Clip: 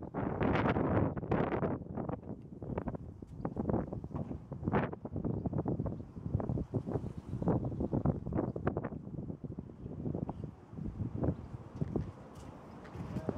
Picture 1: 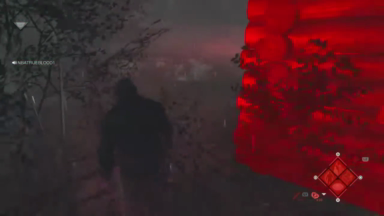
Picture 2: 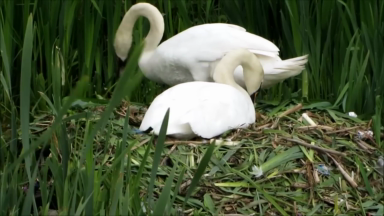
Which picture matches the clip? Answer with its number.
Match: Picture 2